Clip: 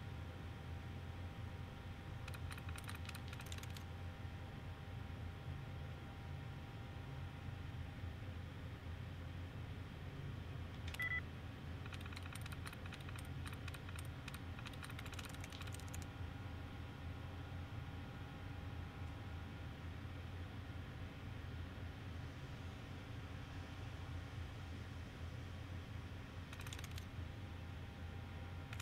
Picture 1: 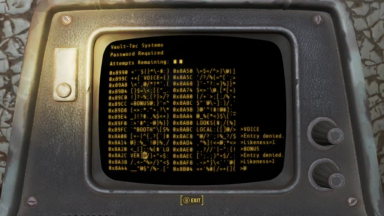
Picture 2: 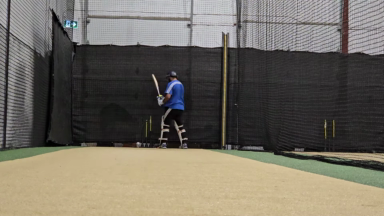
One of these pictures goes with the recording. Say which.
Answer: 1